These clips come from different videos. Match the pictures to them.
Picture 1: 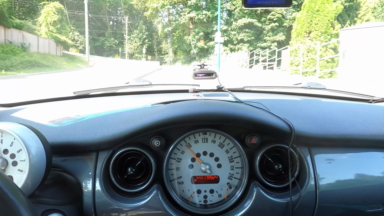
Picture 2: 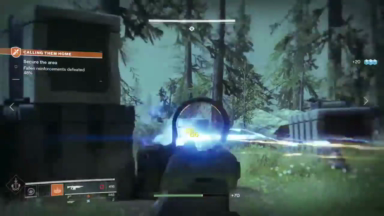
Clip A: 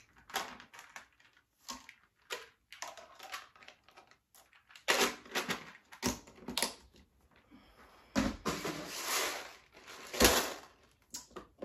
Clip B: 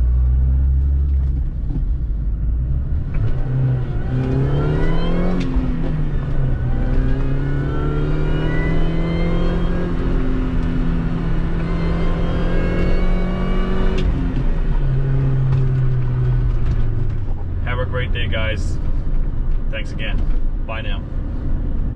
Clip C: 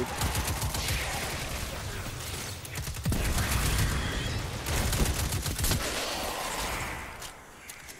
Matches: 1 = B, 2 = C